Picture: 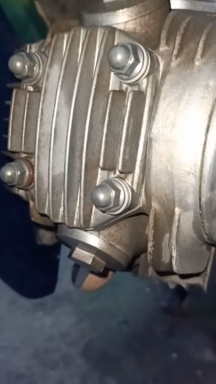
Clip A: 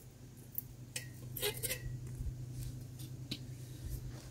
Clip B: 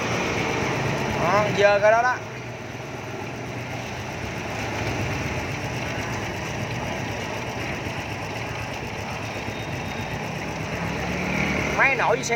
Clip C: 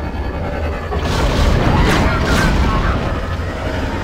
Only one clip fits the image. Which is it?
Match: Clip B